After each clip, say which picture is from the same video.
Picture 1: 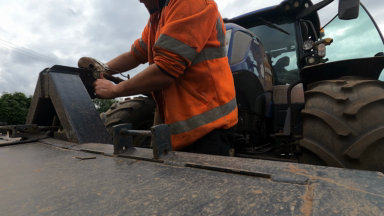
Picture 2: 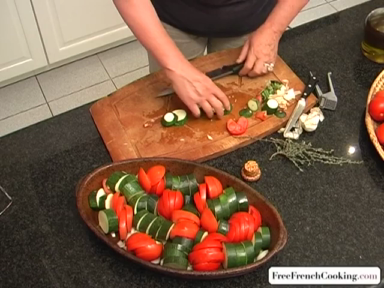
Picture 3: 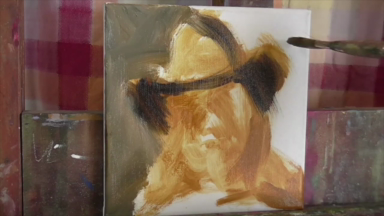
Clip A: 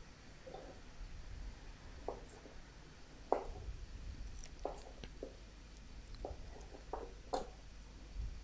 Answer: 2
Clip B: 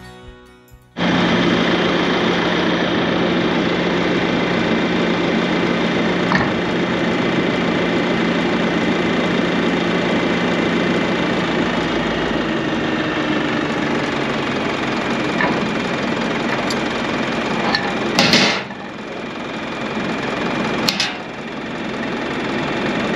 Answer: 1